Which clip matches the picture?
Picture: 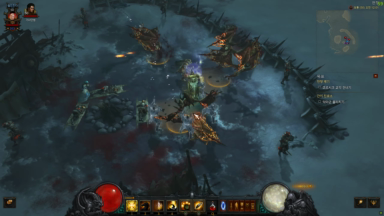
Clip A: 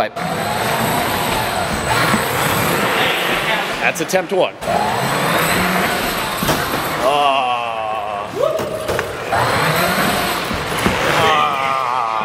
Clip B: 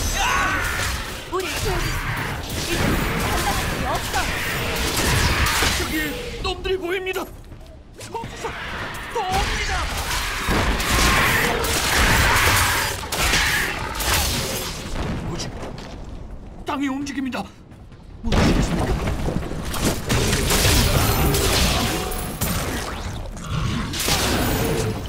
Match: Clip B